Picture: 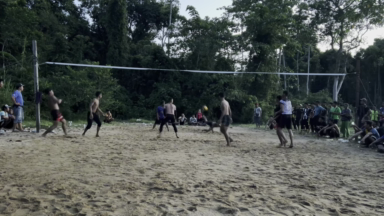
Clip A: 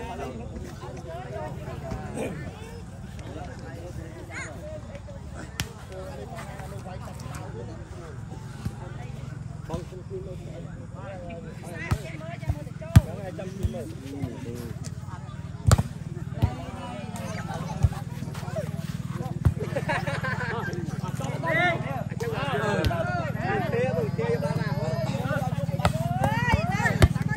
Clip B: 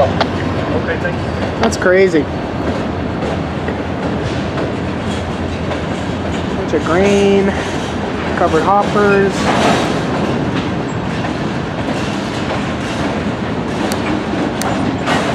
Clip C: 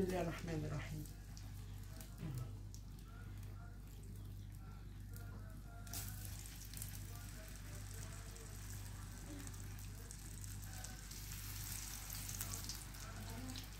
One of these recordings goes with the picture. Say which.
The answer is A